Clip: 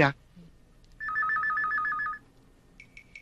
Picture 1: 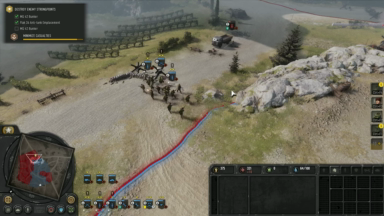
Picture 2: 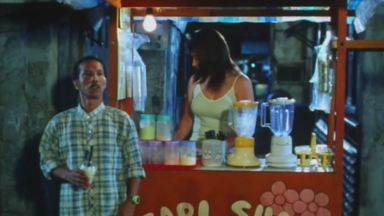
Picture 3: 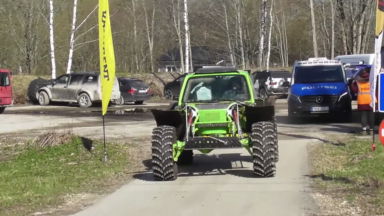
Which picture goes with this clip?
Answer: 2